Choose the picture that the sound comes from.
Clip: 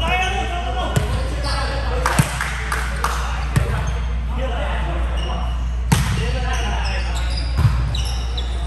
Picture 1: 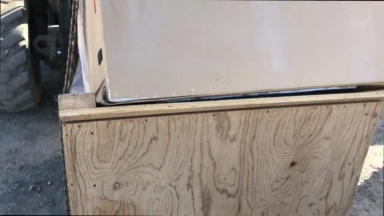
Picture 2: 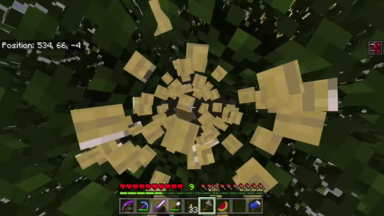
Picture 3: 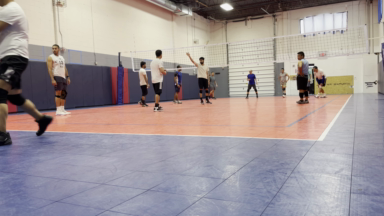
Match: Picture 3